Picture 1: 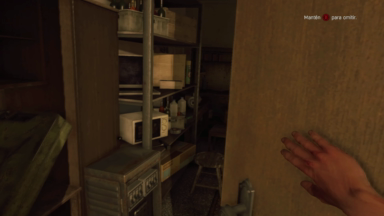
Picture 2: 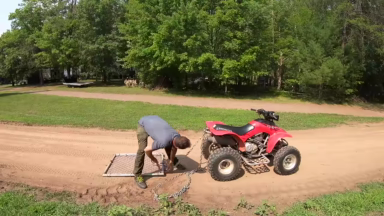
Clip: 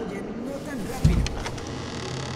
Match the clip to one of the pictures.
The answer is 1